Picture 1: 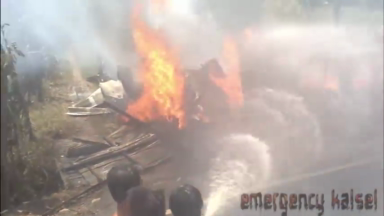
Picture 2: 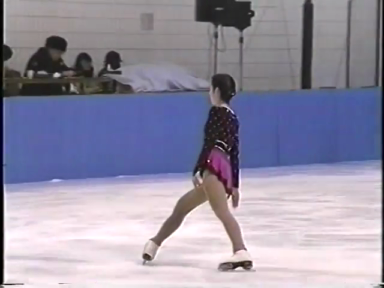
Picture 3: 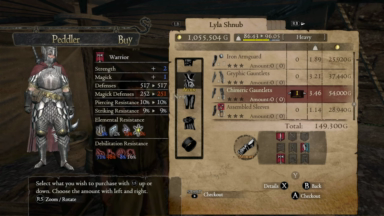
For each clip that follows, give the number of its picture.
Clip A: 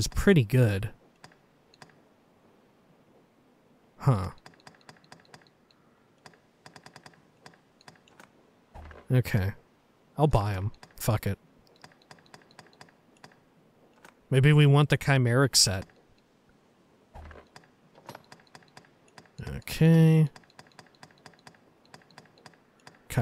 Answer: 3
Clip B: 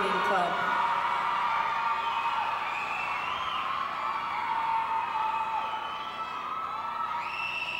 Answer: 2